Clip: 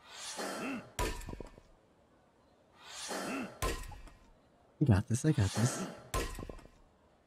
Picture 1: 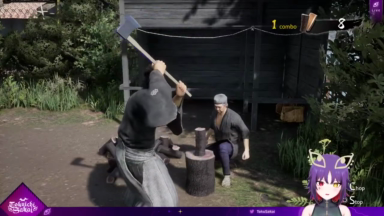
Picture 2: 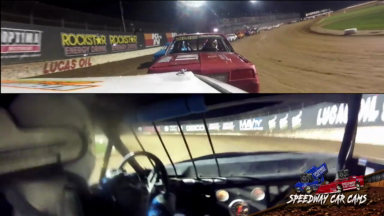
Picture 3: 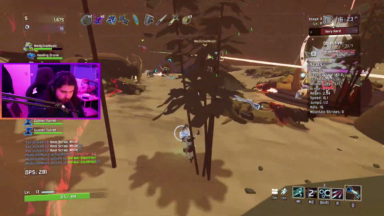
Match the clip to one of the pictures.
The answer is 1